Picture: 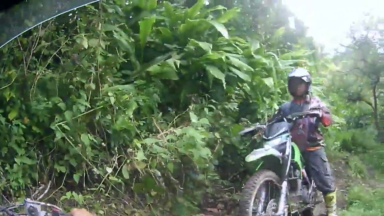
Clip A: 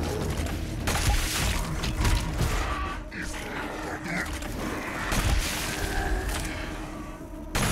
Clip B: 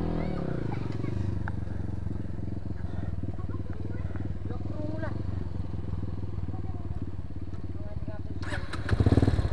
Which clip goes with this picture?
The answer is B